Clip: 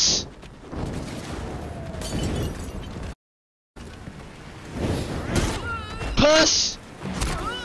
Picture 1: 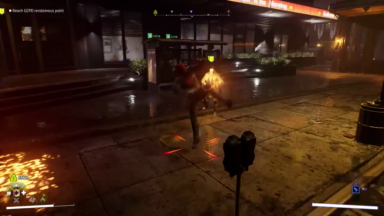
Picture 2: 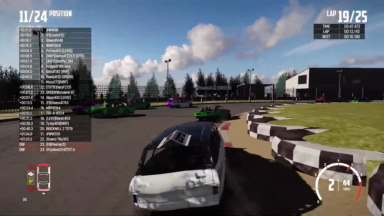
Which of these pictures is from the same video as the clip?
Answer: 1